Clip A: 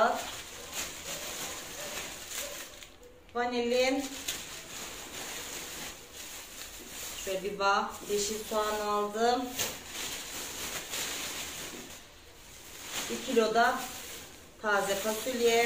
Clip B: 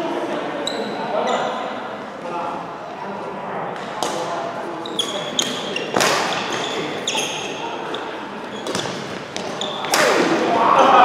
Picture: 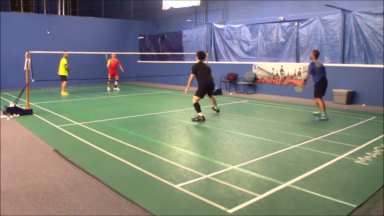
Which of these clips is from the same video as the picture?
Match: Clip B